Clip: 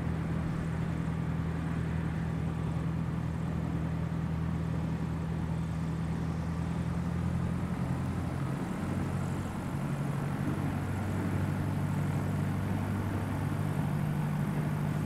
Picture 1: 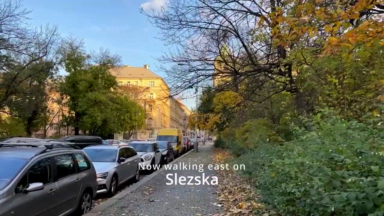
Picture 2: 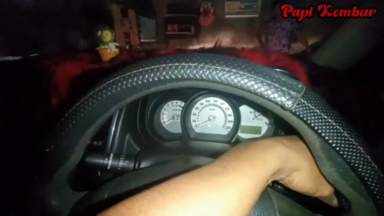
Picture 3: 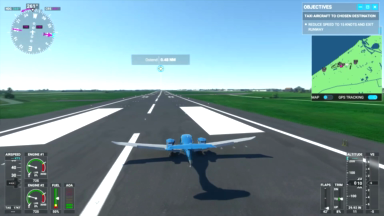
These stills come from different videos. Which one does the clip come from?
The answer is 3